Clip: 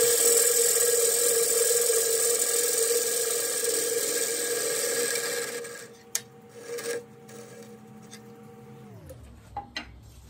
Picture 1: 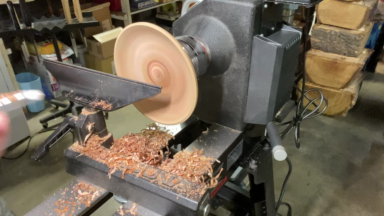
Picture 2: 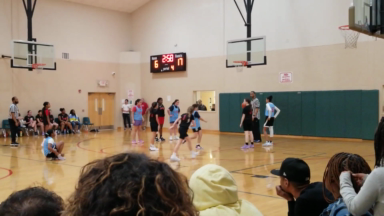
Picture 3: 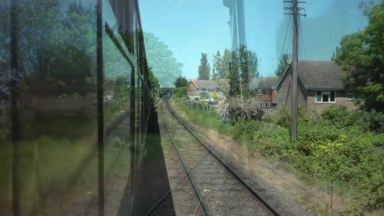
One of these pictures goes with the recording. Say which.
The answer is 1